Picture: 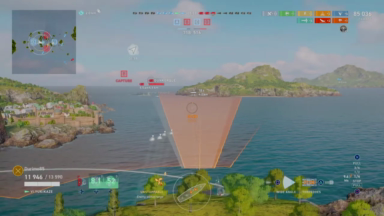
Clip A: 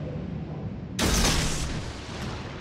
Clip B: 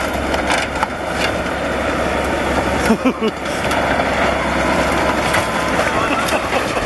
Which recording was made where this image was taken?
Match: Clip A